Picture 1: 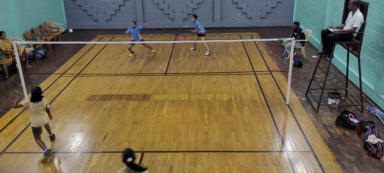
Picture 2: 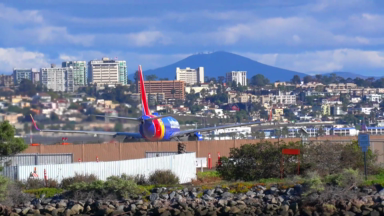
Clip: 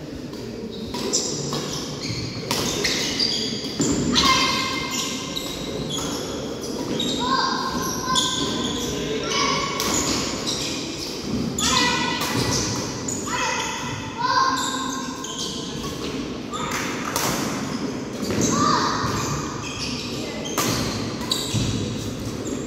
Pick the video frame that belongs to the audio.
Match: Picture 1